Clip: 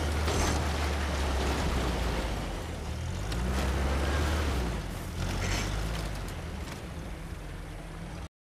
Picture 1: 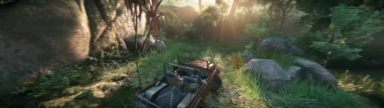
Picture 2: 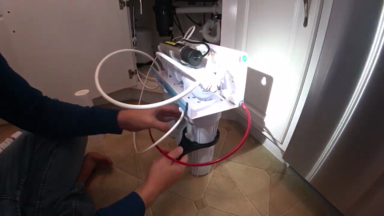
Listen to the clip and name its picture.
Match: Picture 1